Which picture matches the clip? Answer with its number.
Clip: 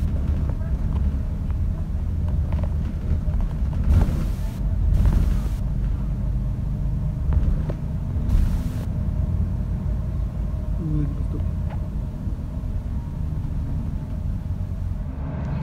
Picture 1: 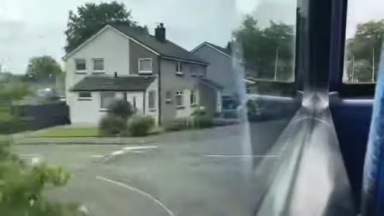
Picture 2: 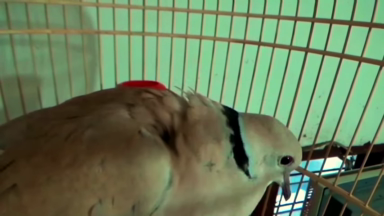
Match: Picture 1